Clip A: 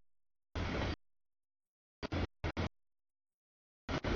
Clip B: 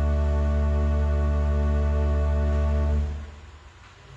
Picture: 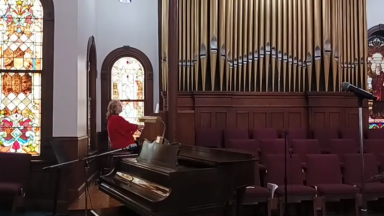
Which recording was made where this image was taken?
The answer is B